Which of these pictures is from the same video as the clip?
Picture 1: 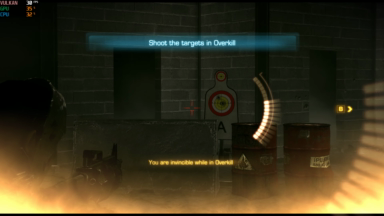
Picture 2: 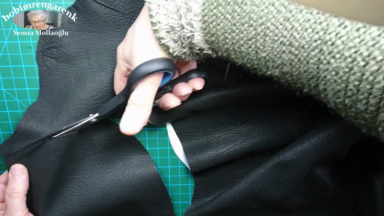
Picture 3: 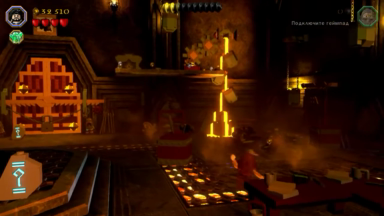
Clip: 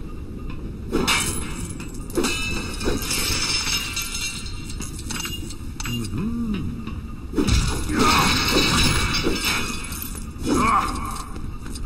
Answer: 3